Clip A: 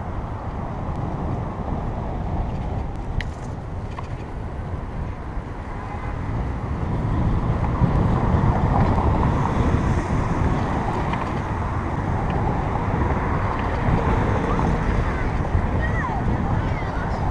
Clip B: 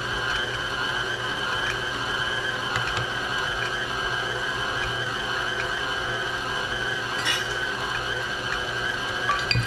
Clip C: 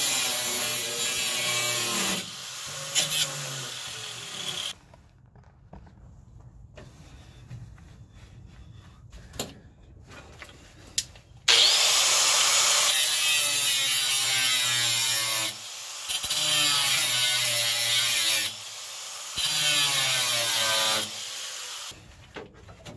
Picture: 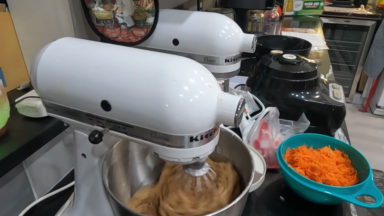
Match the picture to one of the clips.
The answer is B